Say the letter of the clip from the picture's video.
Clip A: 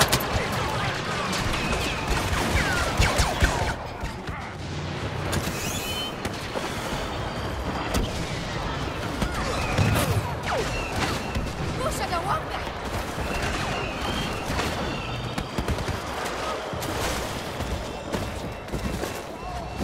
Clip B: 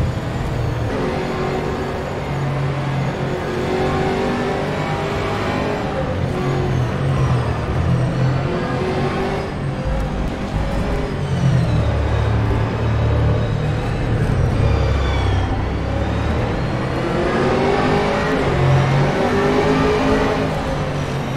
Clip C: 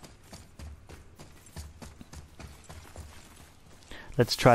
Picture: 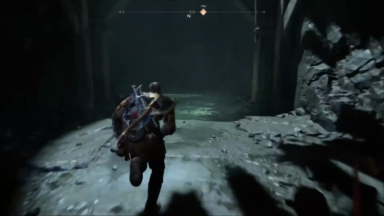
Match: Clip C